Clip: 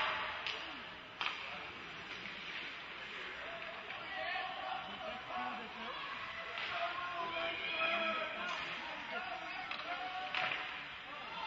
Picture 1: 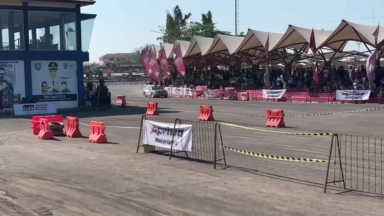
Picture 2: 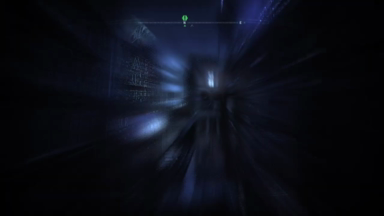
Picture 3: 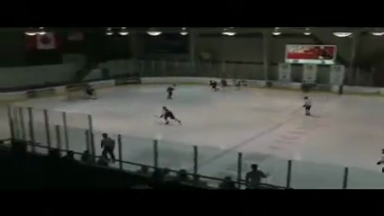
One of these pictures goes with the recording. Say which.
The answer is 3